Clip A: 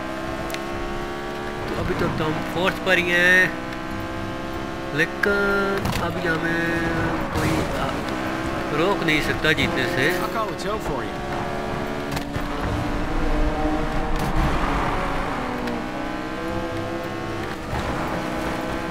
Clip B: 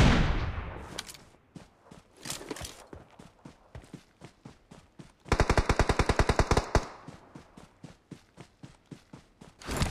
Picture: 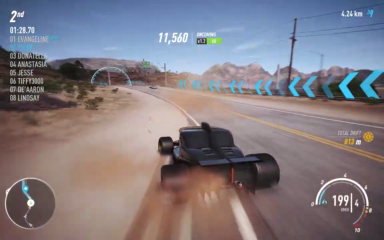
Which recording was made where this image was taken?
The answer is A